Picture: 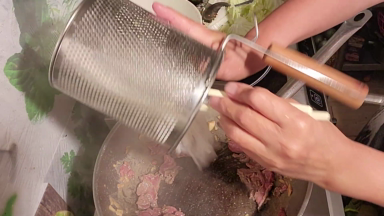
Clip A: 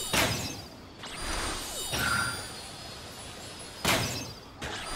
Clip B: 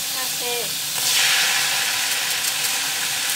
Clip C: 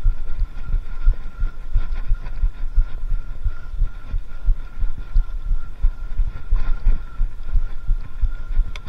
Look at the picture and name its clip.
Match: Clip B